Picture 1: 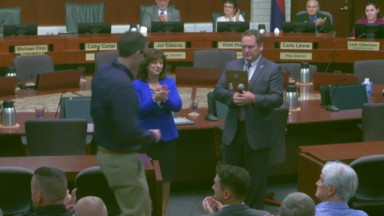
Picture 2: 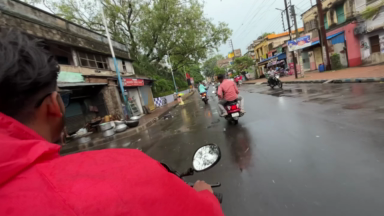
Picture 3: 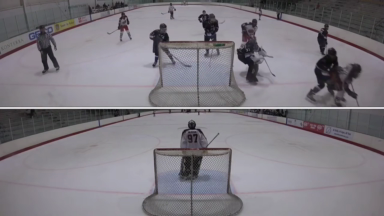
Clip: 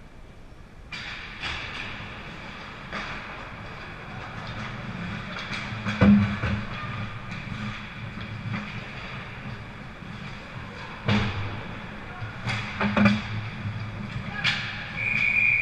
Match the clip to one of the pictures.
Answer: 3